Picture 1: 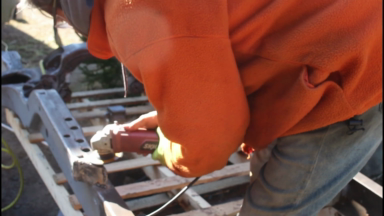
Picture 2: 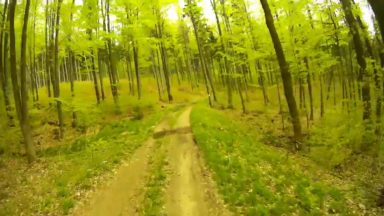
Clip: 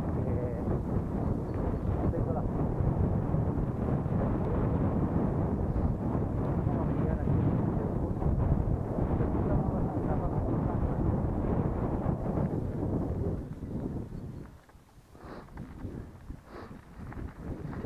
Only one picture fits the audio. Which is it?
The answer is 2